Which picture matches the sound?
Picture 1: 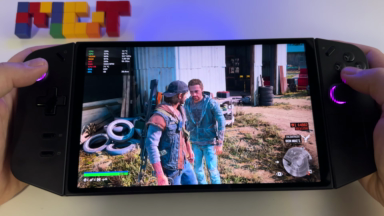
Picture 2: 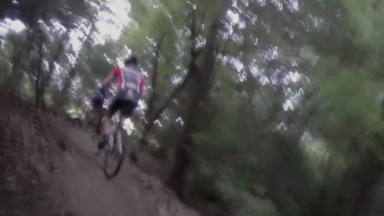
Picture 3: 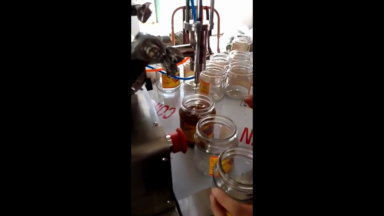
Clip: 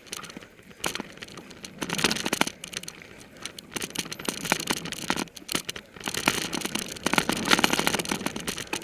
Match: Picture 2